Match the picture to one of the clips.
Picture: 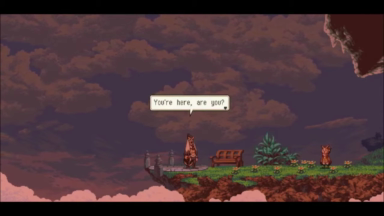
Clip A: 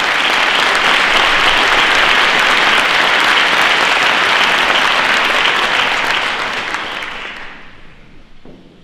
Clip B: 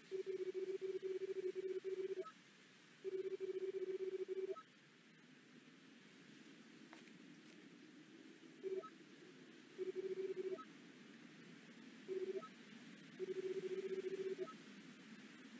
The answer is B